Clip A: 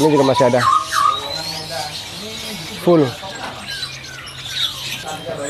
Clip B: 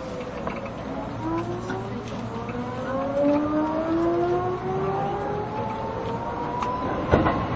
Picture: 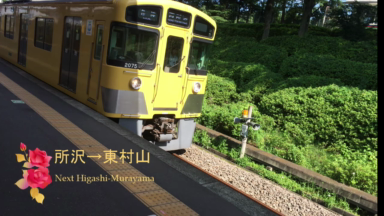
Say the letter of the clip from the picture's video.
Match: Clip B